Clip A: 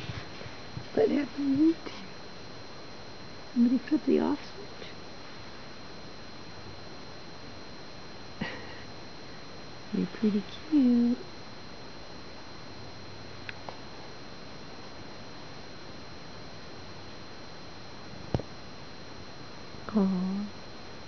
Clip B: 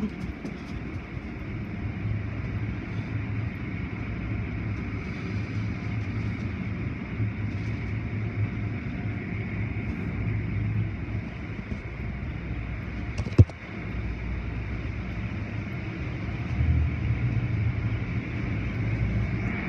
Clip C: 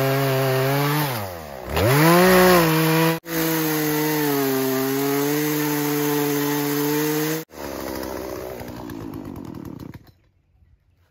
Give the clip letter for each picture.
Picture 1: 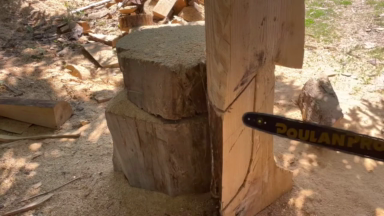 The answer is C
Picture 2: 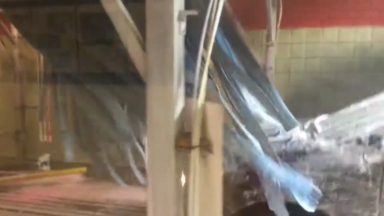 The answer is B